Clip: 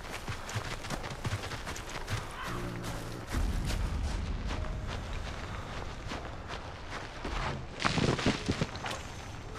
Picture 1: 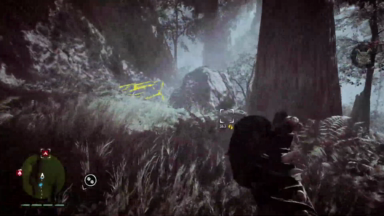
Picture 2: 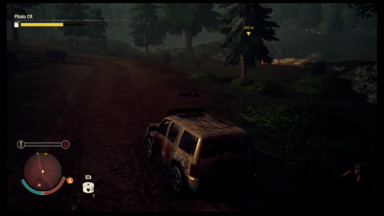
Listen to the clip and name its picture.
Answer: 1